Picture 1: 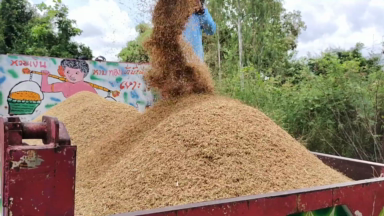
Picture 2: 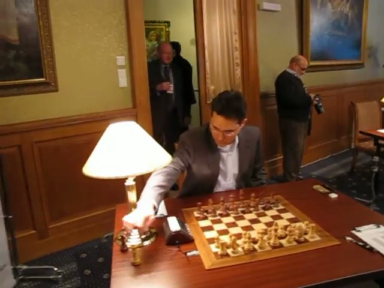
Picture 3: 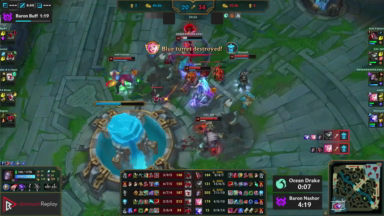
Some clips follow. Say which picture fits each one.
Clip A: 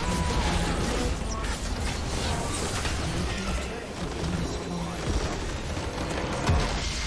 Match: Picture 3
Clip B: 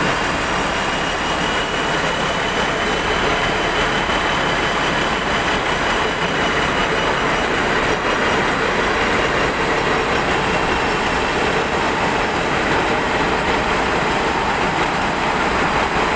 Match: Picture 1